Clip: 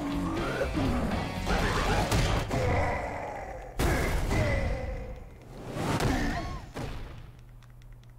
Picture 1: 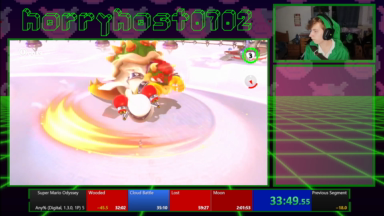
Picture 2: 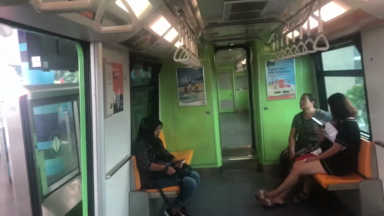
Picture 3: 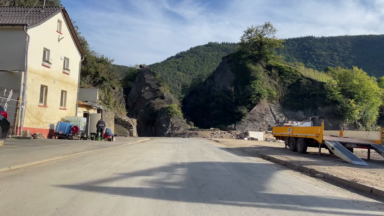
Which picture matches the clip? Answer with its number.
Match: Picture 1